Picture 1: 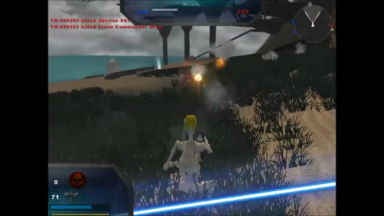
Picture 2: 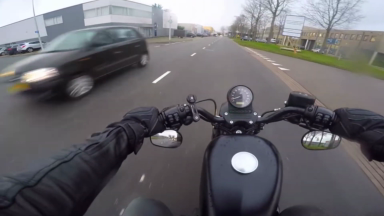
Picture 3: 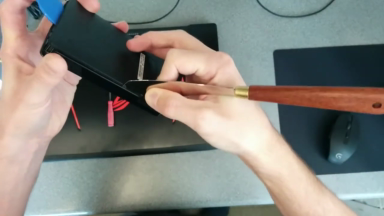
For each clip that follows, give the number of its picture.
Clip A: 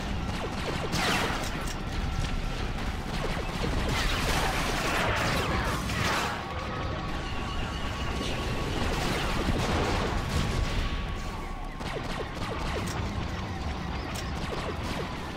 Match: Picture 1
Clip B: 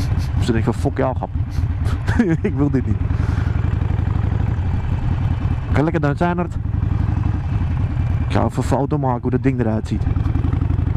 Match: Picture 2